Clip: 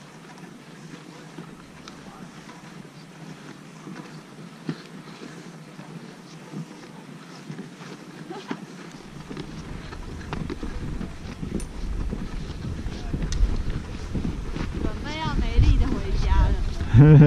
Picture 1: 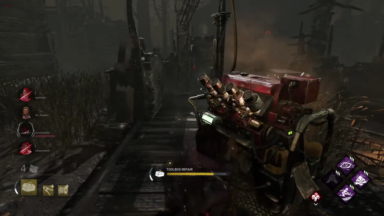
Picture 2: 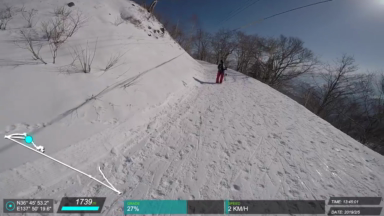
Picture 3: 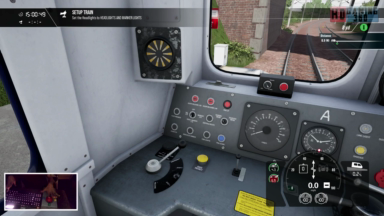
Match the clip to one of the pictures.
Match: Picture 2